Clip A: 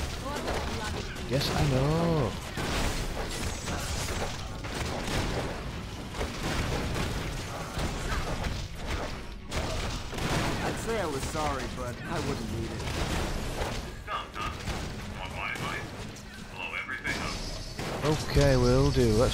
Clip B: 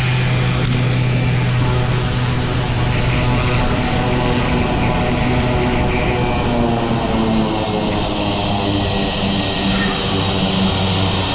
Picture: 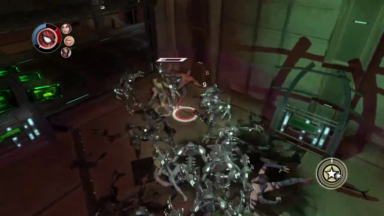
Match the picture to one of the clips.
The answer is A